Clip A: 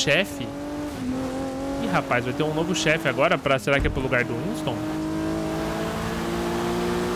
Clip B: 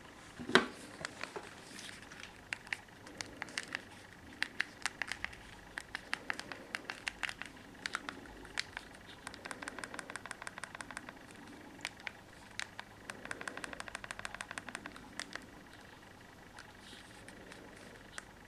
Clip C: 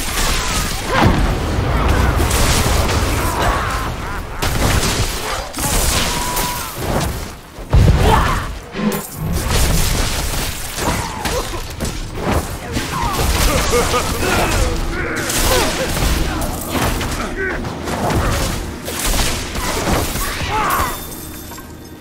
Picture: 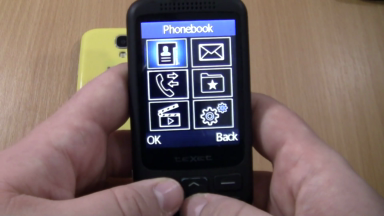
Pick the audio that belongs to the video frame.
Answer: B